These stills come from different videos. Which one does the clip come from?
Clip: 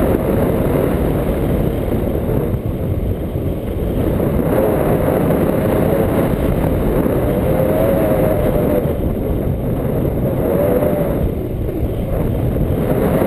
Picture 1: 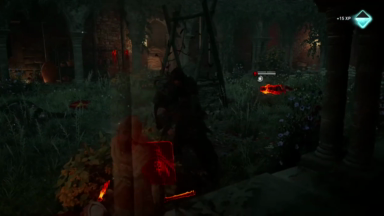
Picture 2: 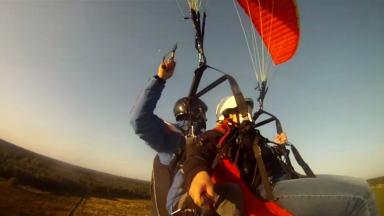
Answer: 2